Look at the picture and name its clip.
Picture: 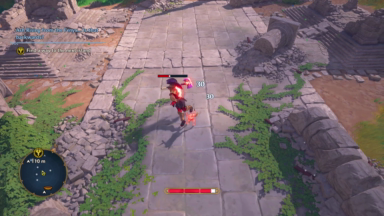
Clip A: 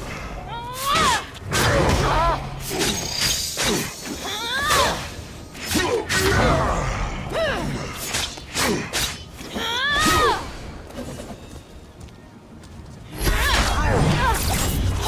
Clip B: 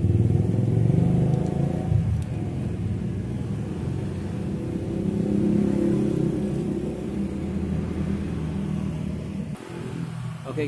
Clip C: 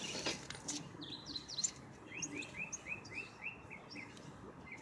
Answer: A